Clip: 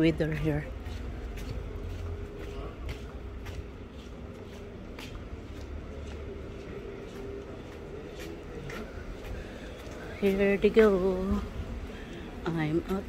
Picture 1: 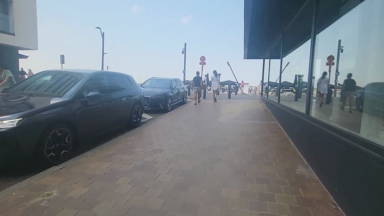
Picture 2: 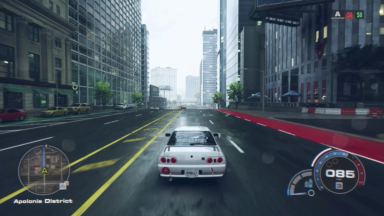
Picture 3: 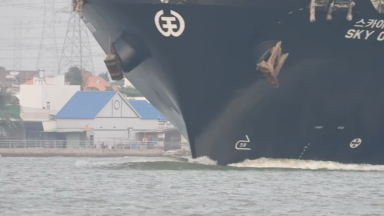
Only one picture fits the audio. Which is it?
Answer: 1